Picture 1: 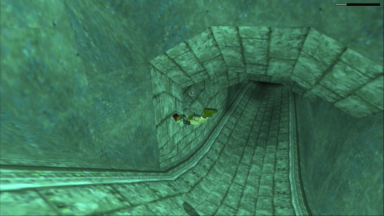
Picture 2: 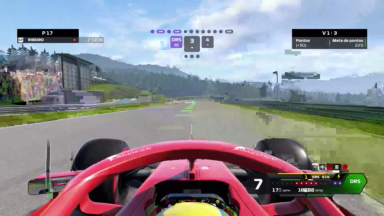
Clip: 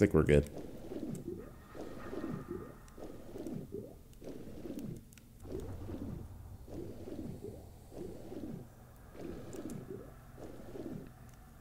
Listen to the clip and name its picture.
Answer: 1